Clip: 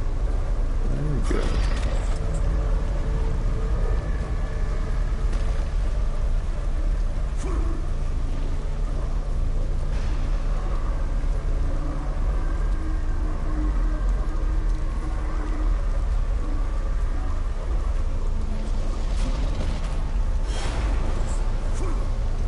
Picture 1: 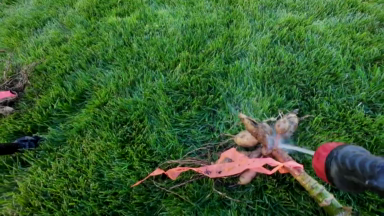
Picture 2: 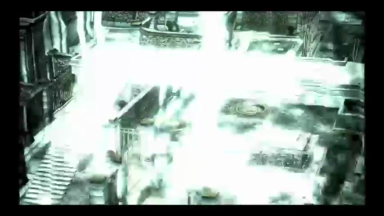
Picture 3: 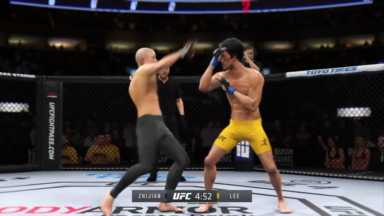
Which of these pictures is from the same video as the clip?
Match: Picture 2